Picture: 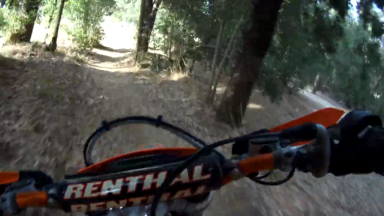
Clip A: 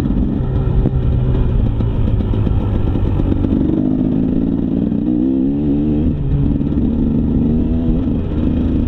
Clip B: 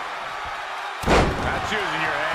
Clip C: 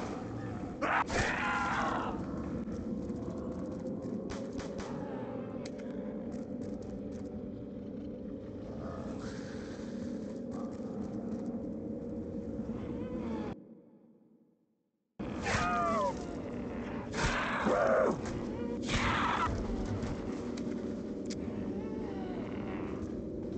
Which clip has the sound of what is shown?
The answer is A